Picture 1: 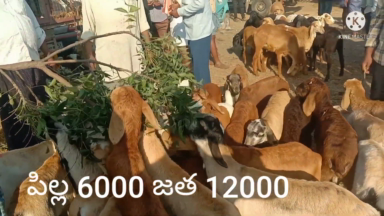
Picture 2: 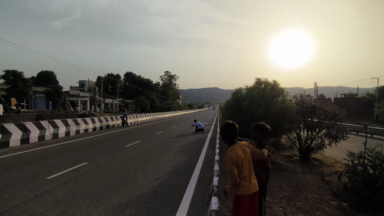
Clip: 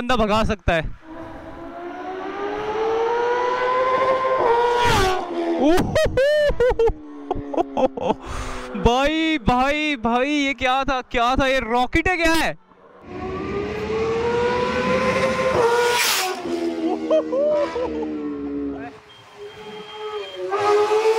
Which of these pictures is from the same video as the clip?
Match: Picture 2